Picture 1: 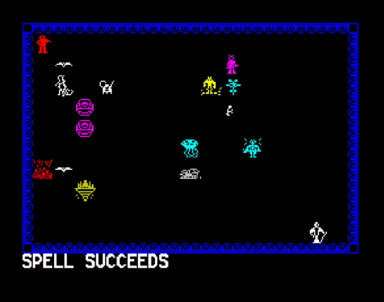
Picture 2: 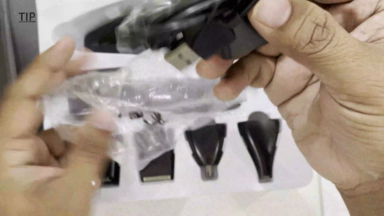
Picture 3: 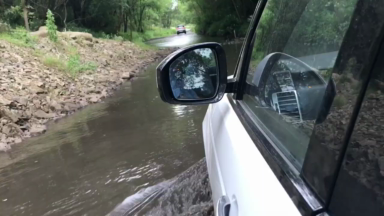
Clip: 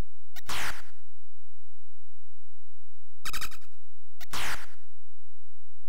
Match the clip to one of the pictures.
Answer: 1